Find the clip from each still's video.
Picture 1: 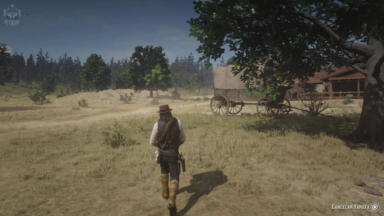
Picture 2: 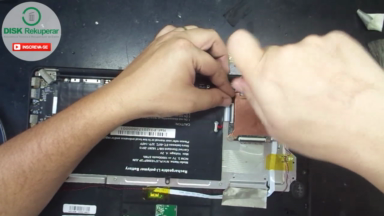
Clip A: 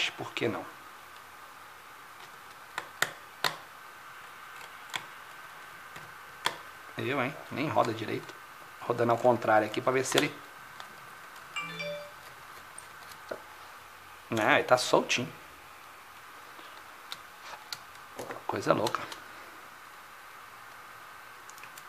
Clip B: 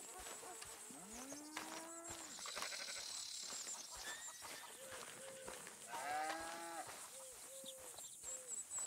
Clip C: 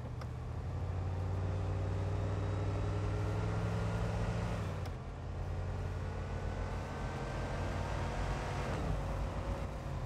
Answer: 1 B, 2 A